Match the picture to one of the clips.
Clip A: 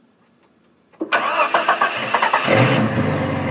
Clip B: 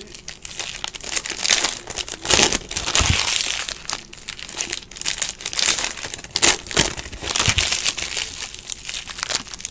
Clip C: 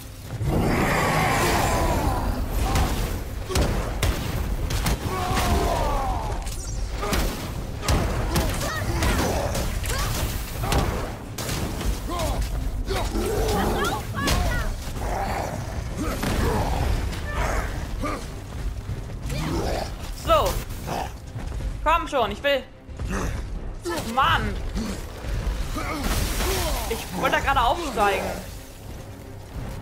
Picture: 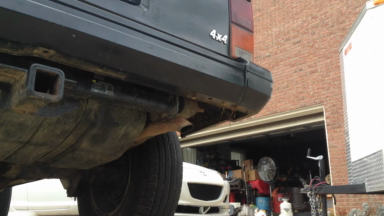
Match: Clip A